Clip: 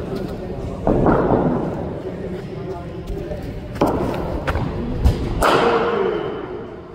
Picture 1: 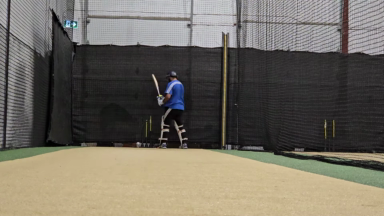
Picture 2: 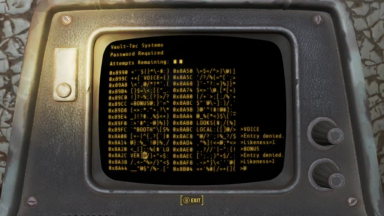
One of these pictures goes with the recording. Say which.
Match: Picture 1